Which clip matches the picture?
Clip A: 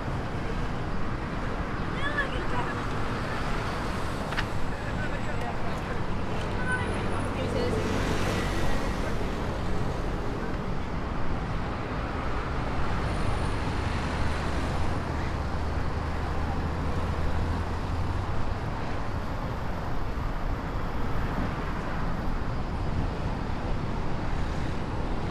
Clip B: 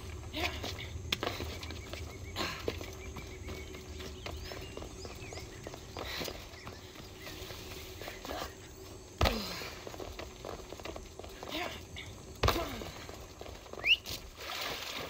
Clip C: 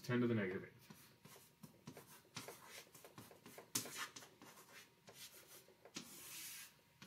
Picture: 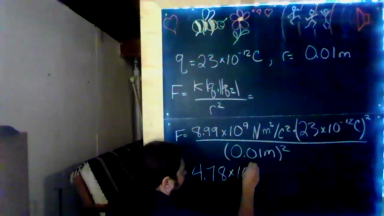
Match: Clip C